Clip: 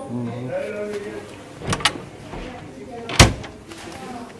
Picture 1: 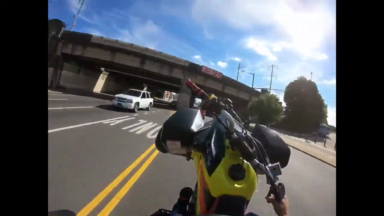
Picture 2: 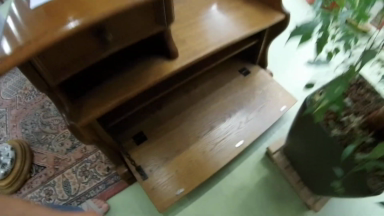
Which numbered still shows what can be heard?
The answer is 2